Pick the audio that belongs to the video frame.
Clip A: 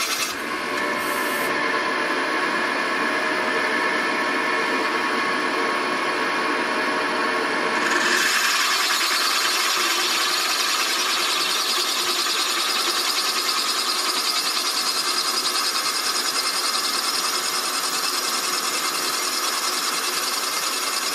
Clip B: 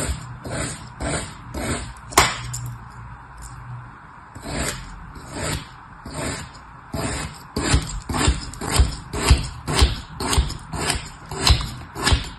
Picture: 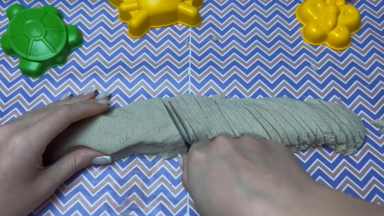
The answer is B